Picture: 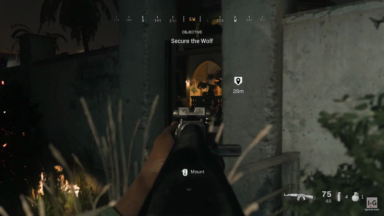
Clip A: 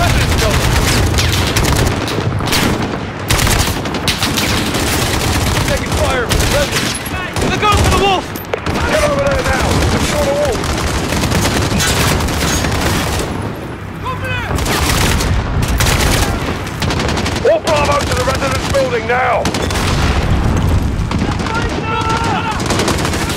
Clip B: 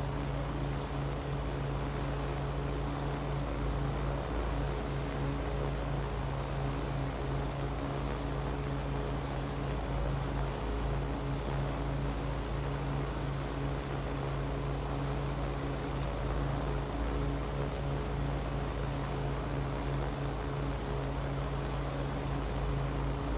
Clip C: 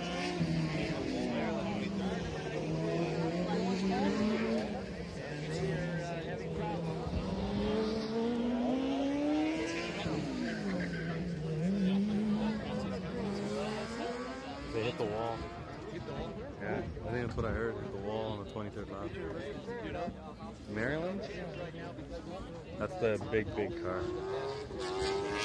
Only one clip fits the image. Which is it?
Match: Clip A